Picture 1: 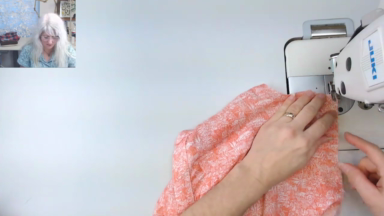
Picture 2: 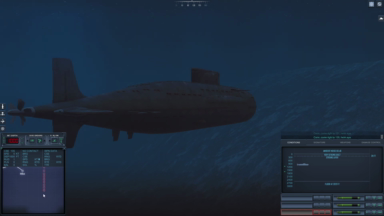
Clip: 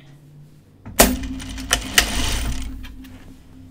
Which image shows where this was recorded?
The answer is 1